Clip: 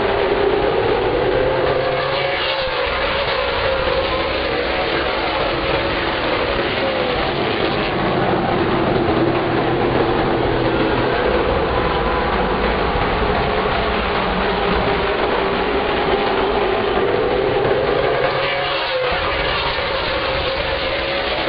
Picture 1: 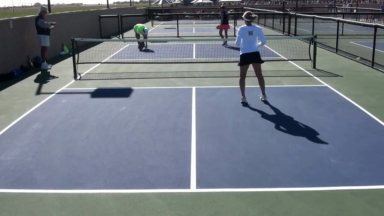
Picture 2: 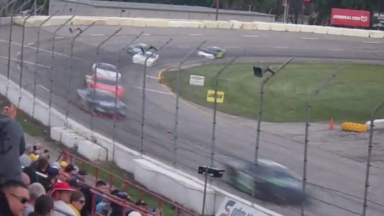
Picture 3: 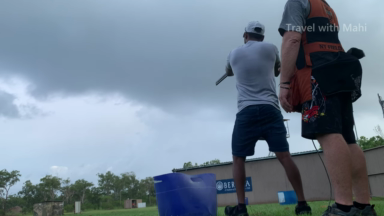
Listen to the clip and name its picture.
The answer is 2